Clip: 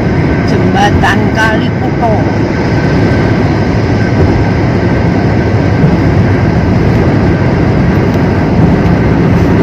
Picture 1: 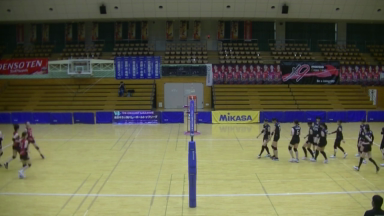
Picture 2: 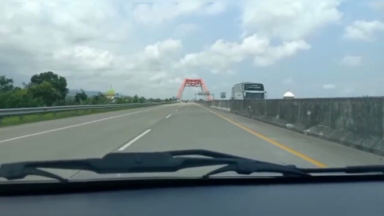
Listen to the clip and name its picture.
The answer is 2